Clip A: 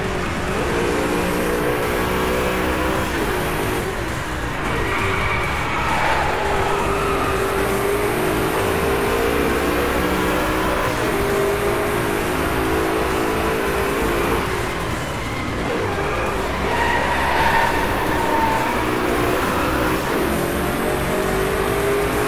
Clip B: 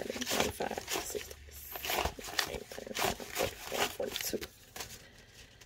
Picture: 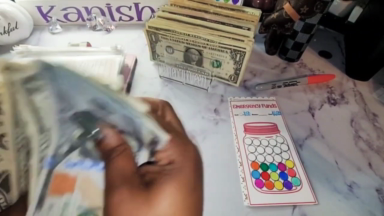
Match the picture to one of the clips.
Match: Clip B